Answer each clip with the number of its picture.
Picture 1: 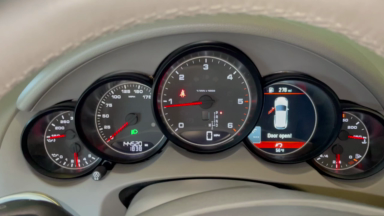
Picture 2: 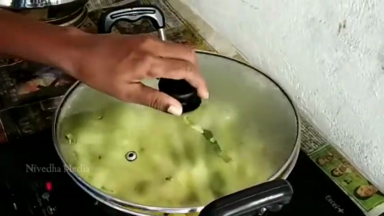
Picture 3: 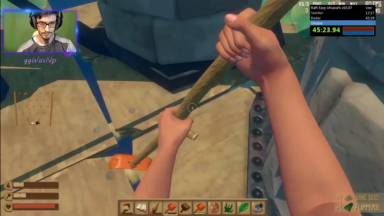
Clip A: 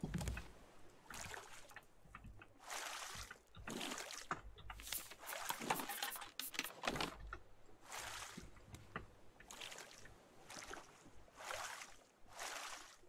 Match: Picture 3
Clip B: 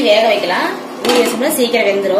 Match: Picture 2